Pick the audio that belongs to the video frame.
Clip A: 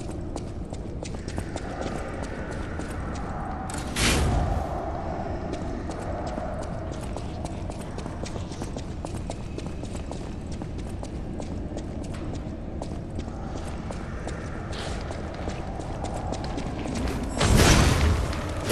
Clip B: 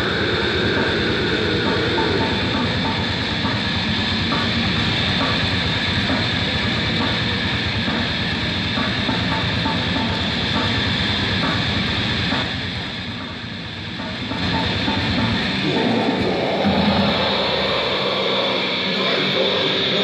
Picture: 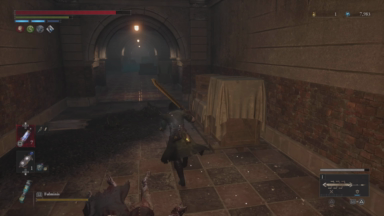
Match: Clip A